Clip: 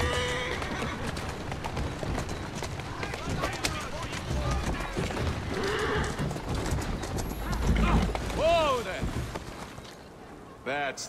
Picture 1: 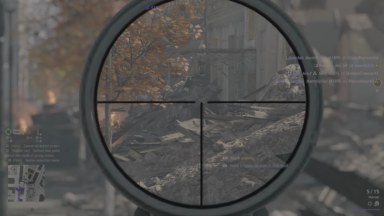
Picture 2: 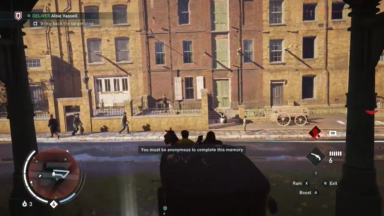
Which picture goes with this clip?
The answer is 2